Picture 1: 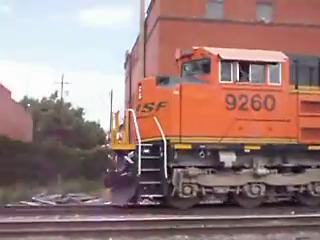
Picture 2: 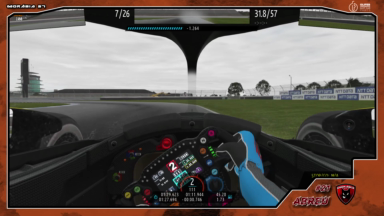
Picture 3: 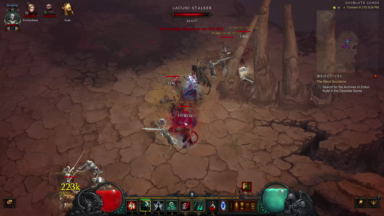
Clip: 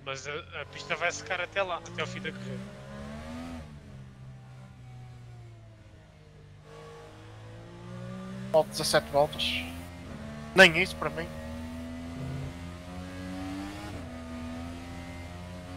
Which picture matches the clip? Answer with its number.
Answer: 2